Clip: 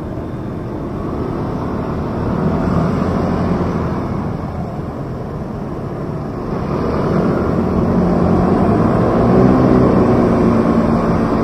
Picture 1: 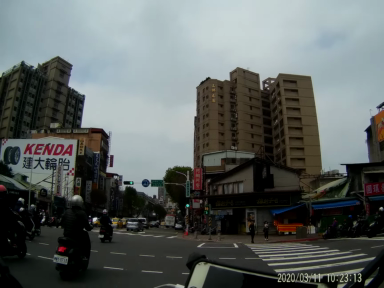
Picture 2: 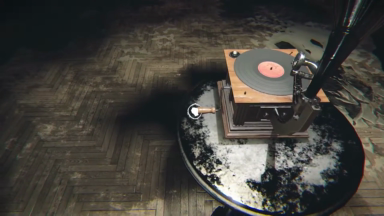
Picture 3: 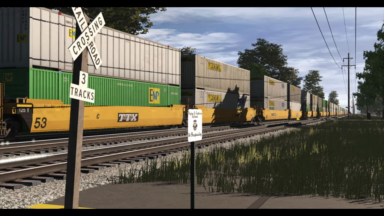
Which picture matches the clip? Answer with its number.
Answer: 1